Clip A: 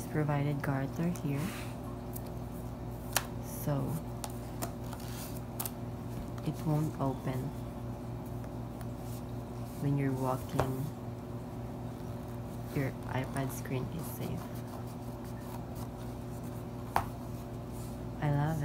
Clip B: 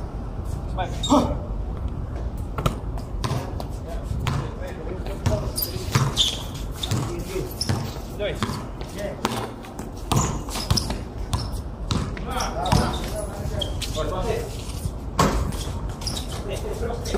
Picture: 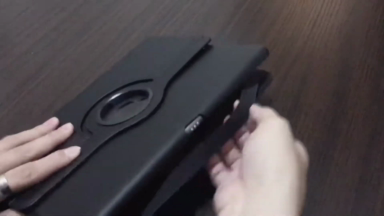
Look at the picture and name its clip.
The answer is A